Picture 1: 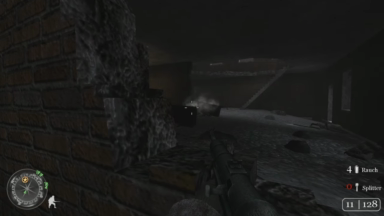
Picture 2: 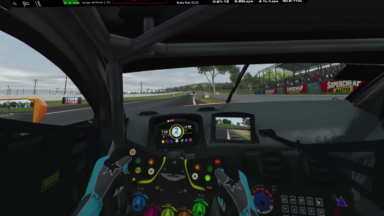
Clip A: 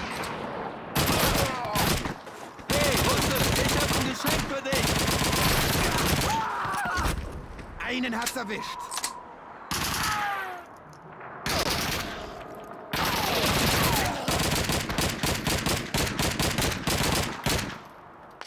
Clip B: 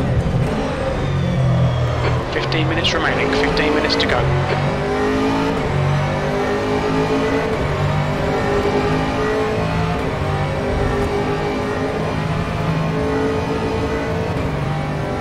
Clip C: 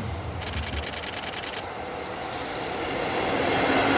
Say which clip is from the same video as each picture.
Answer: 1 A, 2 B